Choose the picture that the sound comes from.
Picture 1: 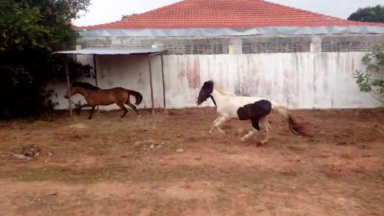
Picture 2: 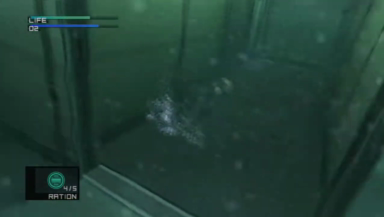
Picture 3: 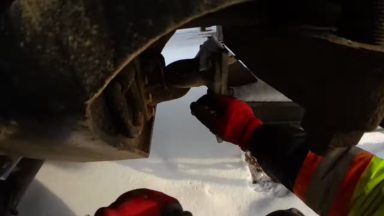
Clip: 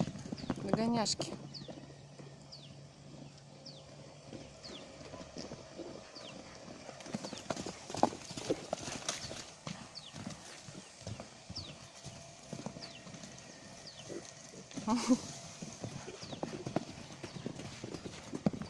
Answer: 1